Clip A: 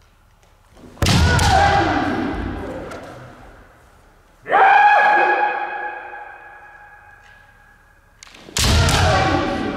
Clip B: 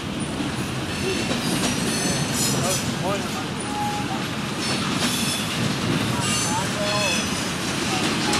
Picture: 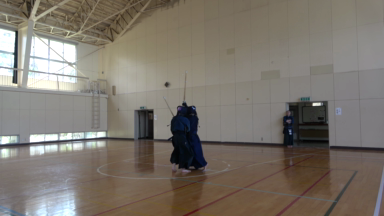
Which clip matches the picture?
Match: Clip A